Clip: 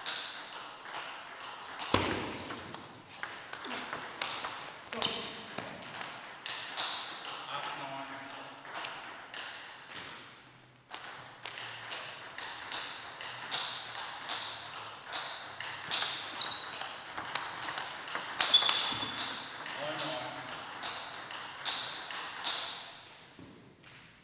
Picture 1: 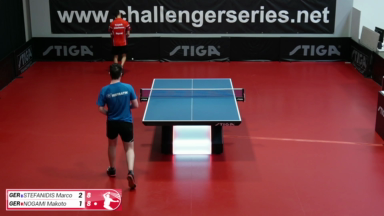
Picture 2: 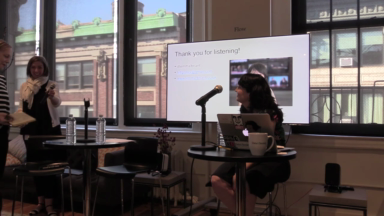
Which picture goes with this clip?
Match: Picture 1